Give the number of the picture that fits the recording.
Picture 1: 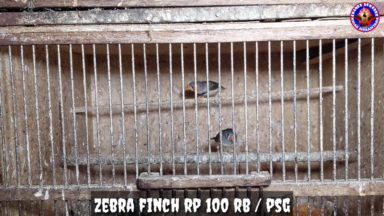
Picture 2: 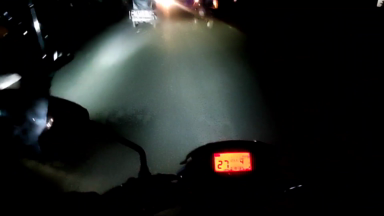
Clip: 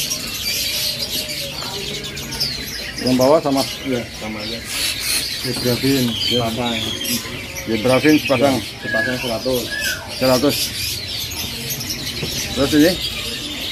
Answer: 1